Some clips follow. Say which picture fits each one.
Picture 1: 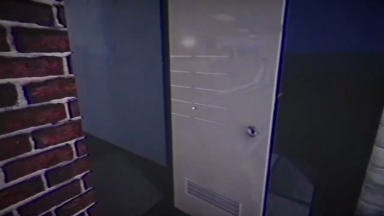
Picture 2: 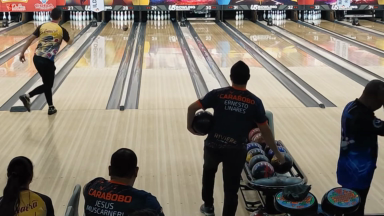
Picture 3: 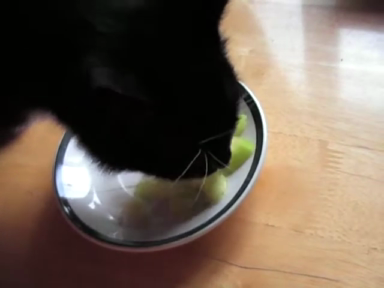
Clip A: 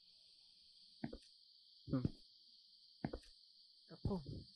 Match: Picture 1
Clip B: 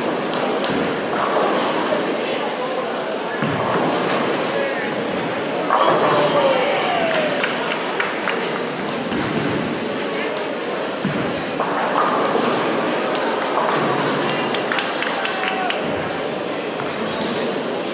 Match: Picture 2